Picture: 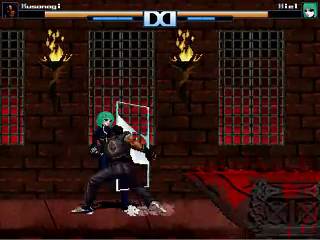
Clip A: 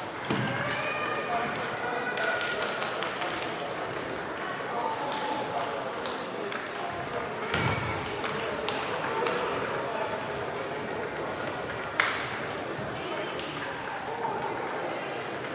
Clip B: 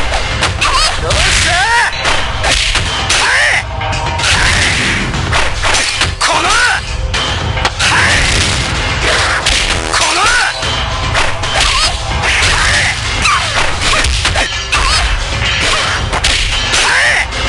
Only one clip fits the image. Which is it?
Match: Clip B